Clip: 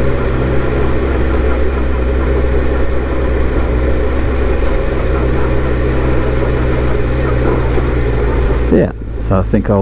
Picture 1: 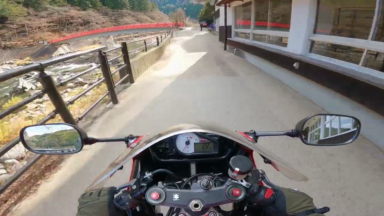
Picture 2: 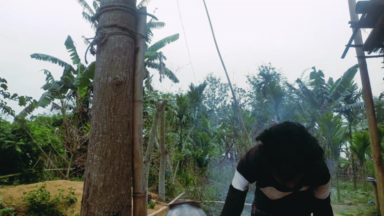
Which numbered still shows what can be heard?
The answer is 1